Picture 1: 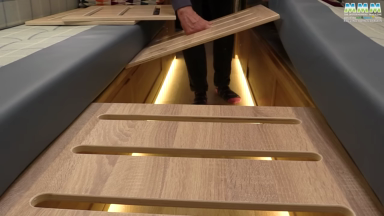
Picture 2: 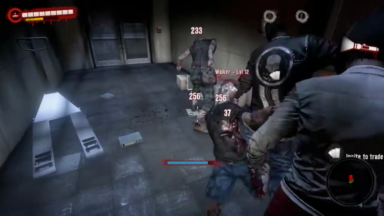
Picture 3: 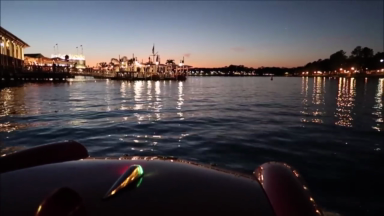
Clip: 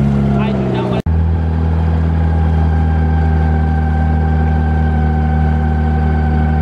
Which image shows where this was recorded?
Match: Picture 3